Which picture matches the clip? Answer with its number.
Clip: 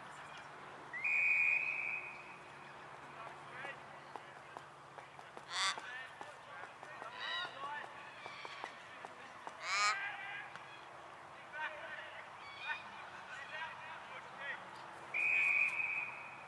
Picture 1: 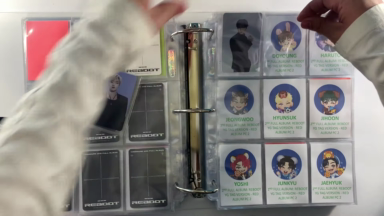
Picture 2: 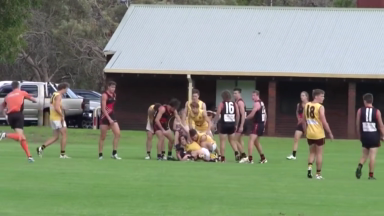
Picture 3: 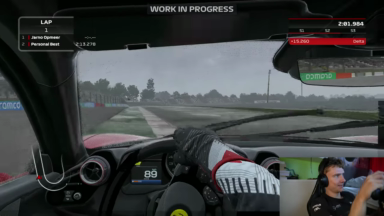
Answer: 2